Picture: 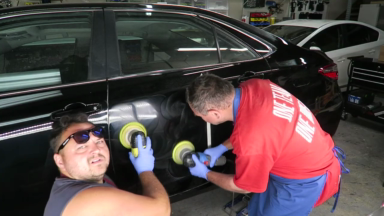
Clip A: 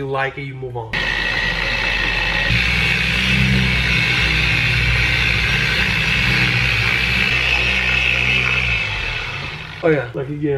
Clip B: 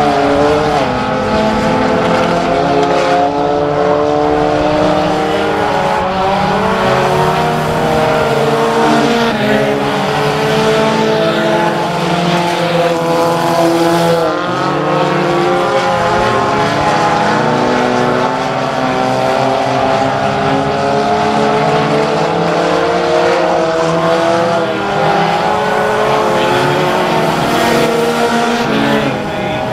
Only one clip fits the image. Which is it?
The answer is A